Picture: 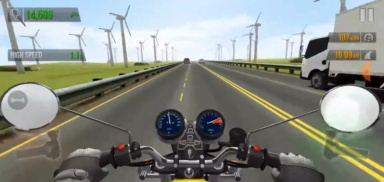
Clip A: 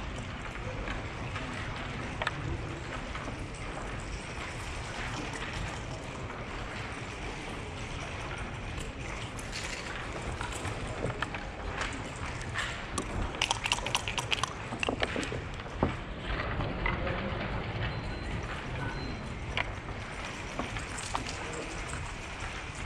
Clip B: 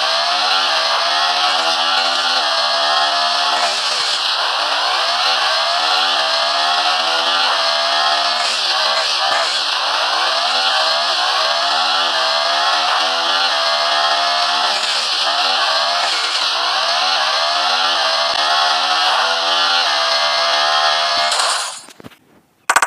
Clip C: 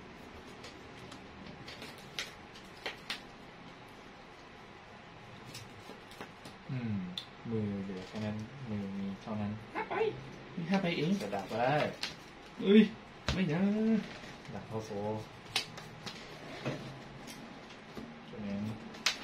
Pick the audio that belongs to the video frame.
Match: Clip B